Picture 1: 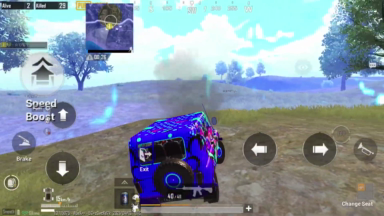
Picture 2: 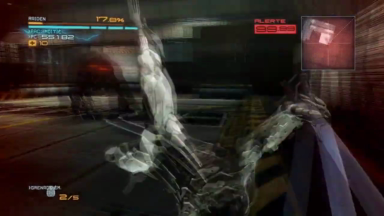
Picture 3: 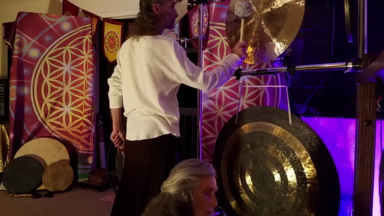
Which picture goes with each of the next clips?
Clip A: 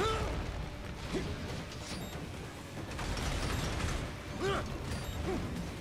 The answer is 2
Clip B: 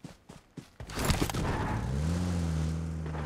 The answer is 1